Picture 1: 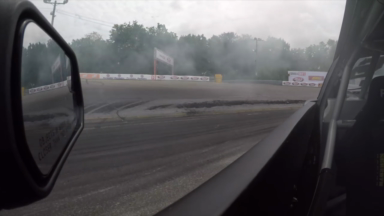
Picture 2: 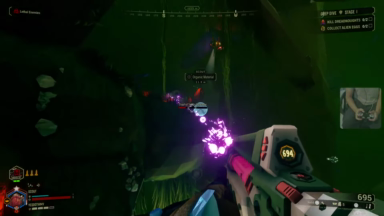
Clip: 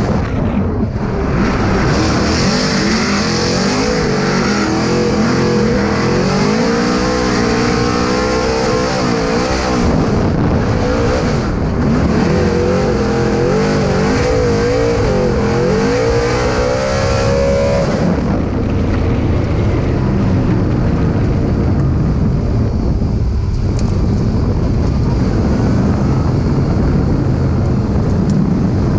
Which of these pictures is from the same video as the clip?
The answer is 1